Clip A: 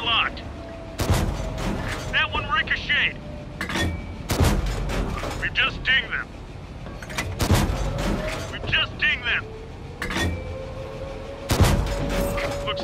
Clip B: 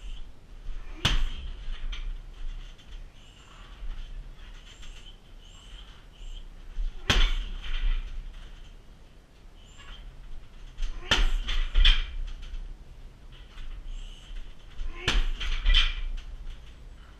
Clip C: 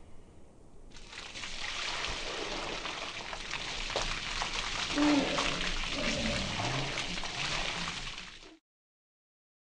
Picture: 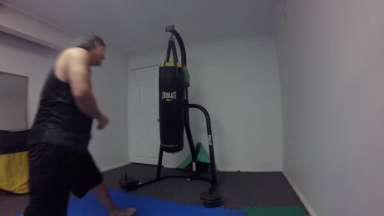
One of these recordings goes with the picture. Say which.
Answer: B